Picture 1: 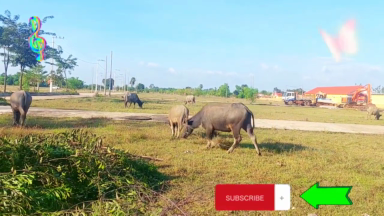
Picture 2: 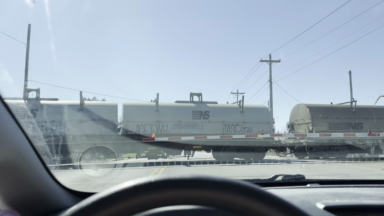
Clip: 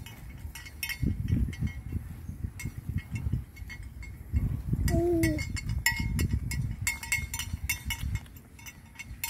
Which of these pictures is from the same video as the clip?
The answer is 1